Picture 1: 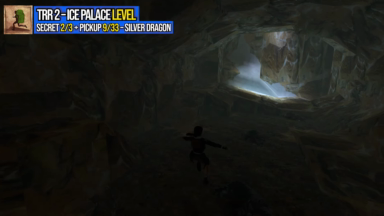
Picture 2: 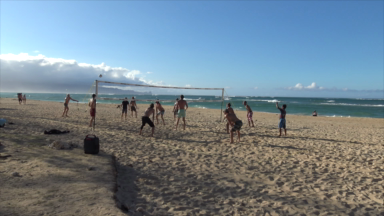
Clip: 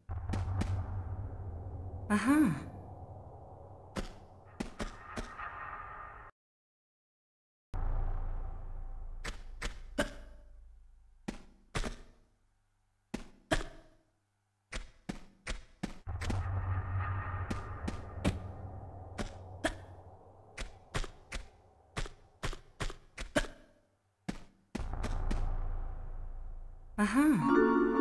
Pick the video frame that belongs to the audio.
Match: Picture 1